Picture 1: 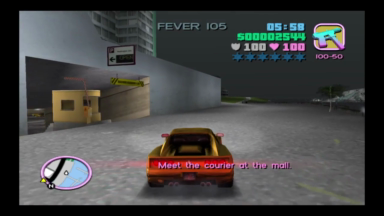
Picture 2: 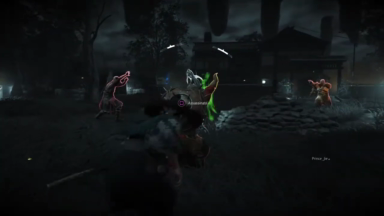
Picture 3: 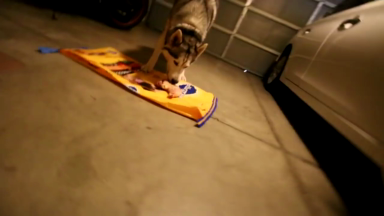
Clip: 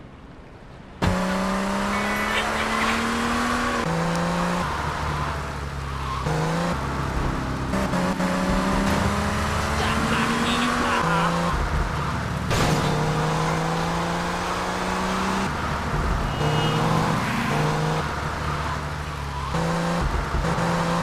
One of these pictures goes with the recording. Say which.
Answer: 1